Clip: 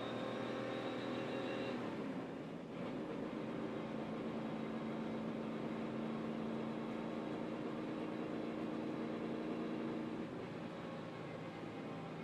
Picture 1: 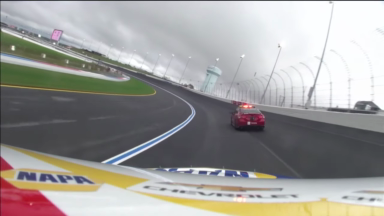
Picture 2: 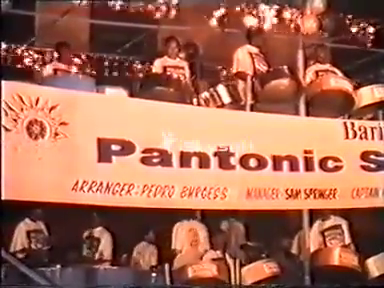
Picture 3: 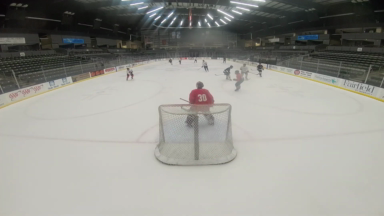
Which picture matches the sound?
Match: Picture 1